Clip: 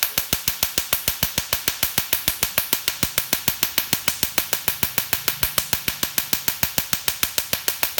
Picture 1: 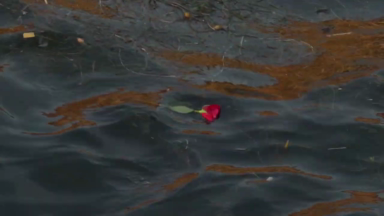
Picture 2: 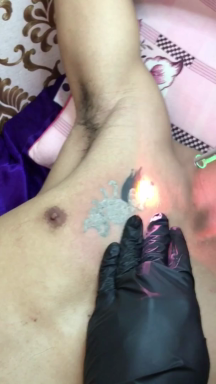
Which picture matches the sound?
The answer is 2